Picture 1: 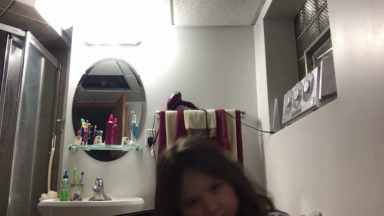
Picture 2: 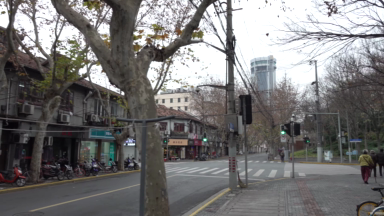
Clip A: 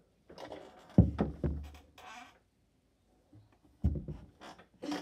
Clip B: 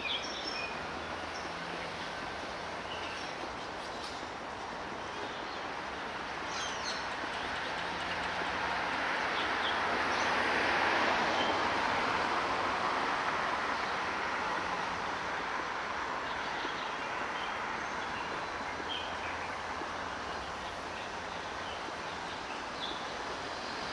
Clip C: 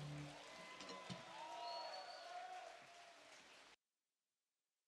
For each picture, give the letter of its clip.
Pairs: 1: A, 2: B